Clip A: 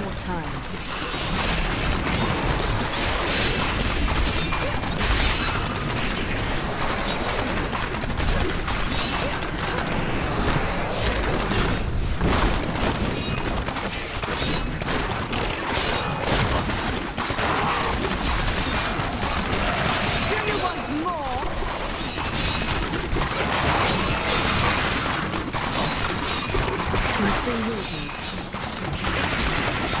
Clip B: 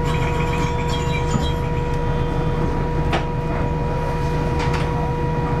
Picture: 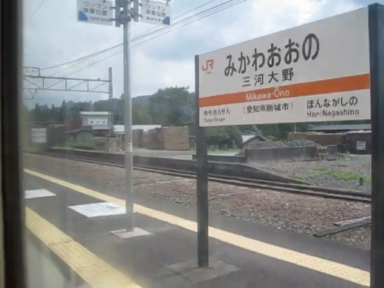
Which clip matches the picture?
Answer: B